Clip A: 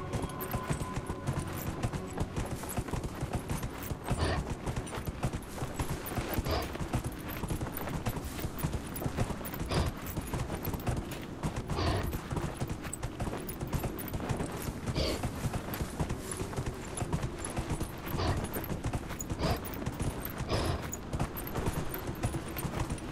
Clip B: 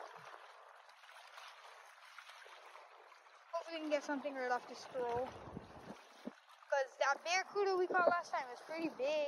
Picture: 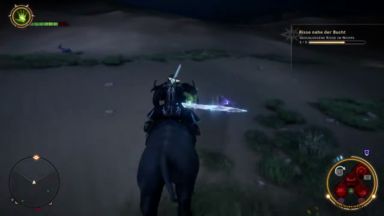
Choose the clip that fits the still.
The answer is A